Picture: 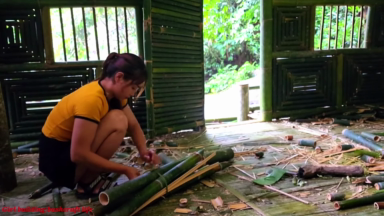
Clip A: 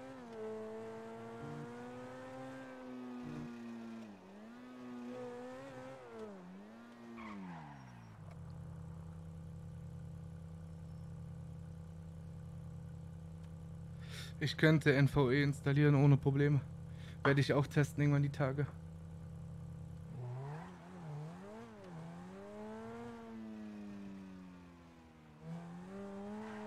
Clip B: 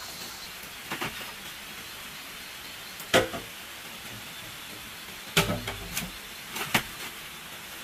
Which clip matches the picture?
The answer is B